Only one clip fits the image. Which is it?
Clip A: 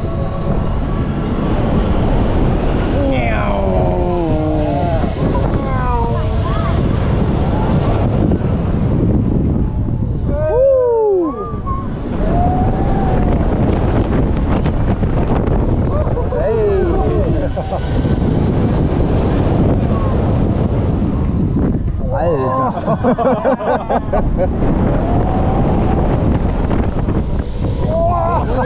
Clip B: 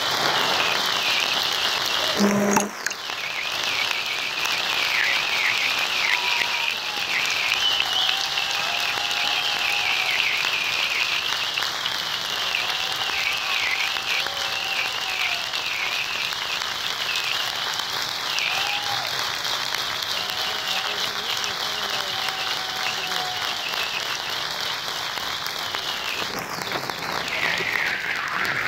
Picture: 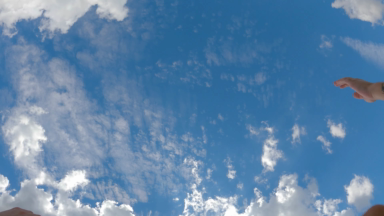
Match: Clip A